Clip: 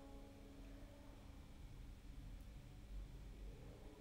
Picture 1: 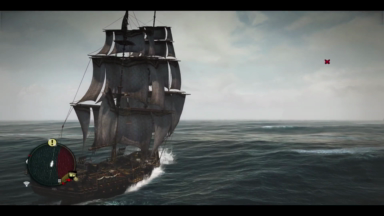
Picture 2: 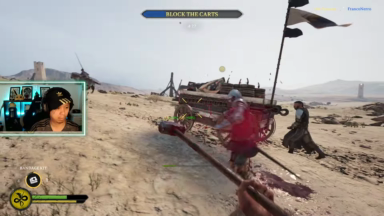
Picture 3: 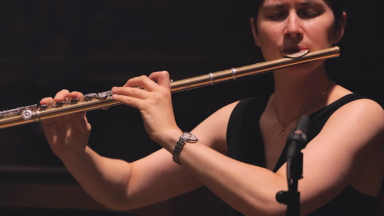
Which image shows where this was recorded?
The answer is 3